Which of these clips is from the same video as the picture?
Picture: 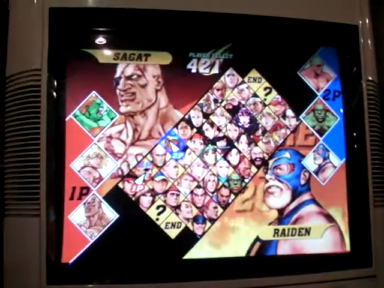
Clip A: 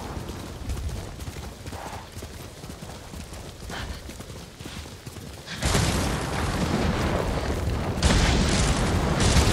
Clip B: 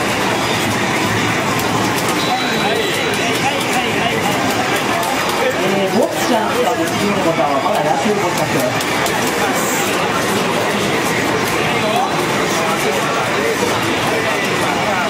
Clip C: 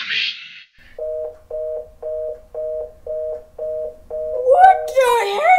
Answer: B